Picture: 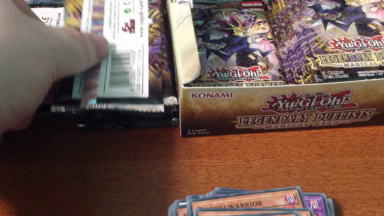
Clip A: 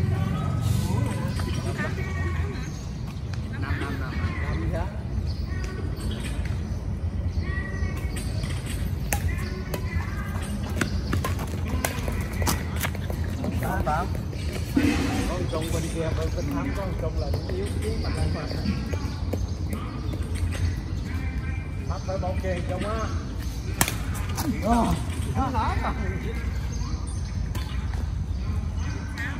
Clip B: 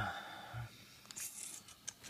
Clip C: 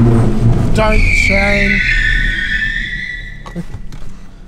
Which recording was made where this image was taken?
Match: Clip B